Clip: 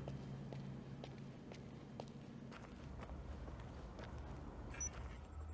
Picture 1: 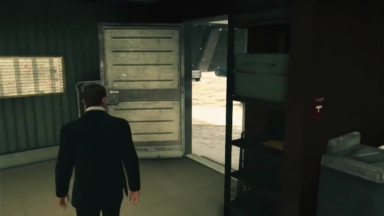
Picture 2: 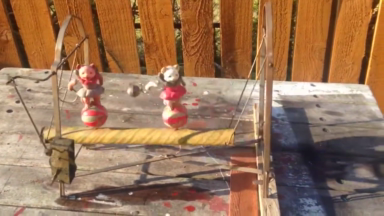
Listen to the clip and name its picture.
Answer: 1